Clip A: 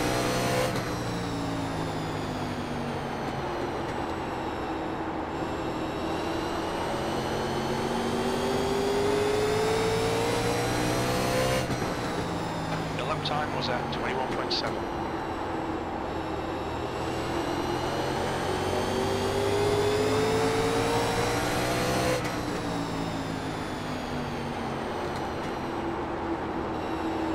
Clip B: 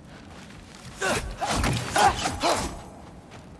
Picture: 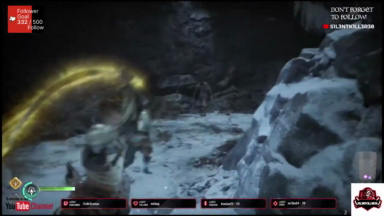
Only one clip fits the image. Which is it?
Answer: B